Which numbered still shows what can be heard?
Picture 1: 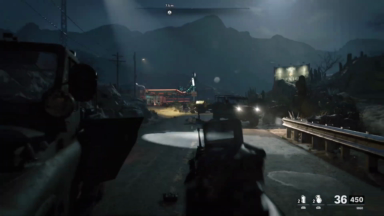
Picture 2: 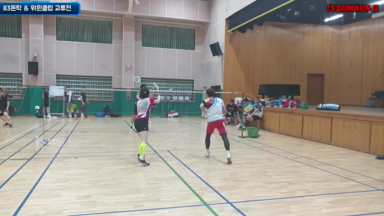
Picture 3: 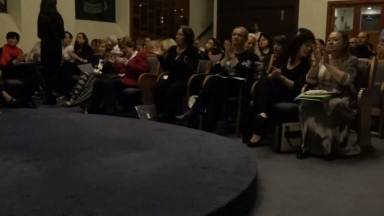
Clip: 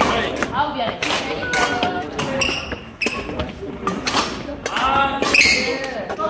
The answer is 2